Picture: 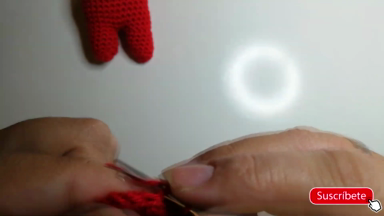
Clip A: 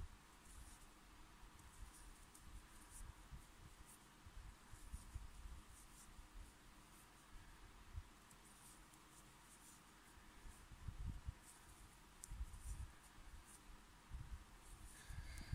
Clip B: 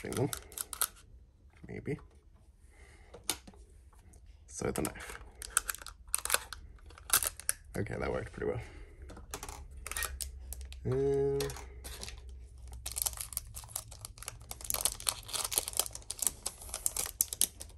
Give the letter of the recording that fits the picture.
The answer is A